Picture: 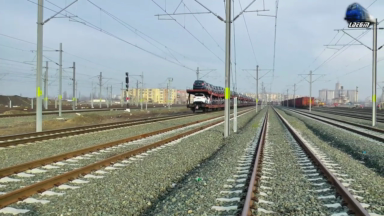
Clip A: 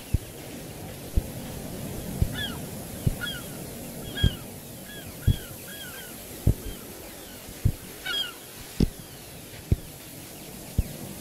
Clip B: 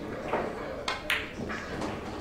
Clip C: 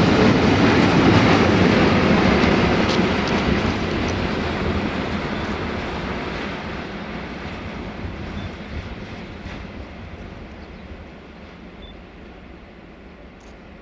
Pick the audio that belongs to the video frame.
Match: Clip C